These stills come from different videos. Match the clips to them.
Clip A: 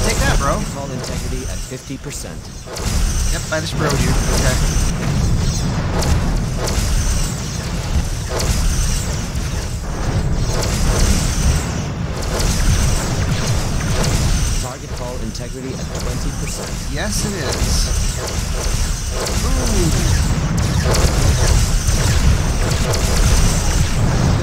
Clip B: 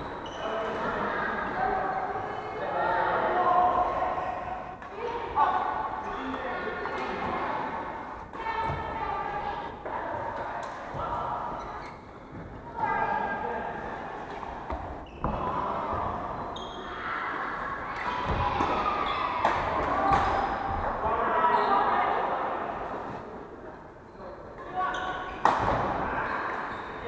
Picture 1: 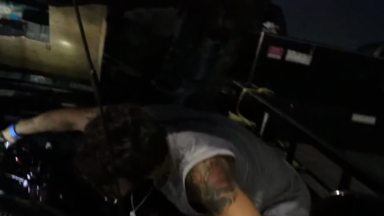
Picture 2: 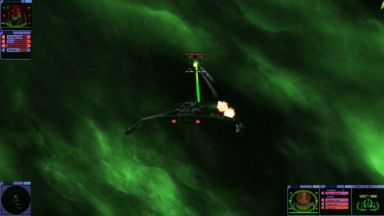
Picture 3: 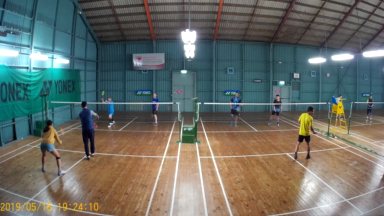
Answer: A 2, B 3